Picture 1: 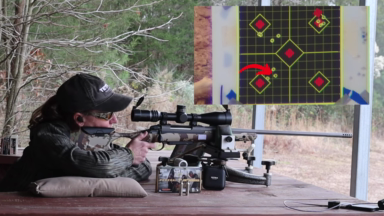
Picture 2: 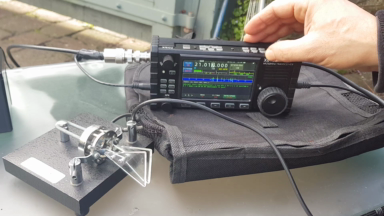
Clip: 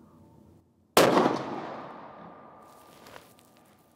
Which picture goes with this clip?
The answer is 1